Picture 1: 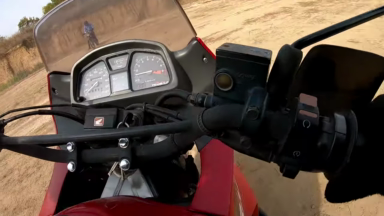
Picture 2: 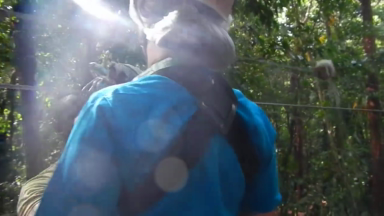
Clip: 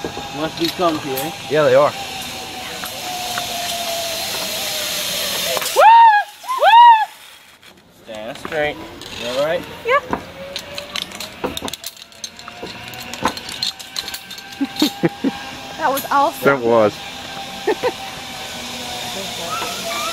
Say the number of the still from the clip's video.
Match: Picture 2